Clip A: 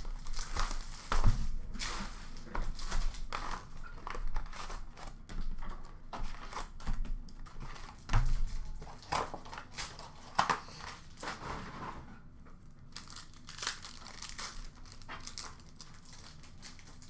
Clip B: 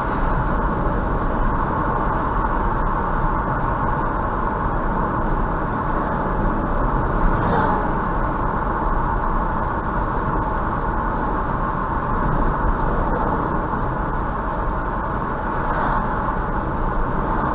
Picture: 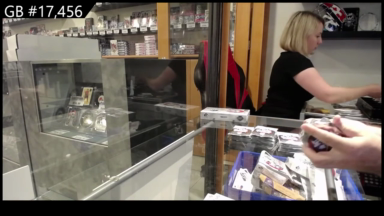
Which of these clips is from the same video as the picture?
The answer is A